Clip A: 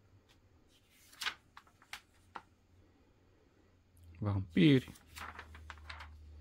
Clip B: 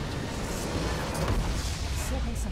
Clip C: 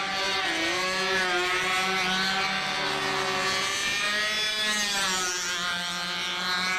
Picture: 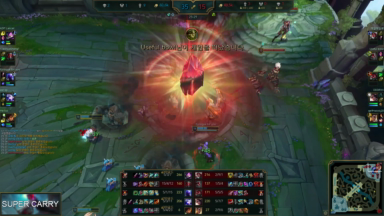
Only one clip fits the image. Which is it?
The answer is B